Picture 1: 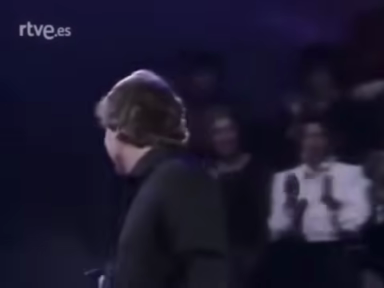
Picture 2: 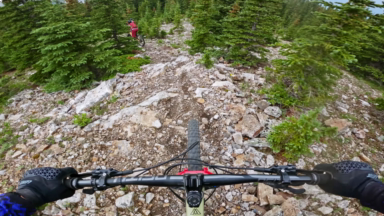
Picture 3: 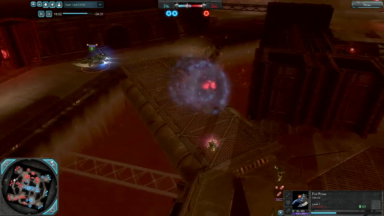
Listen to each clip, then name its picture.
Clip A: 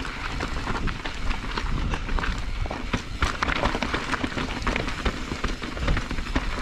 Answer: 2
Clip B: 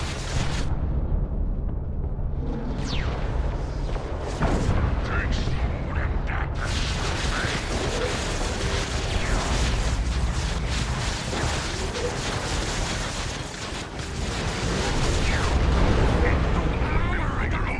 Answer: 3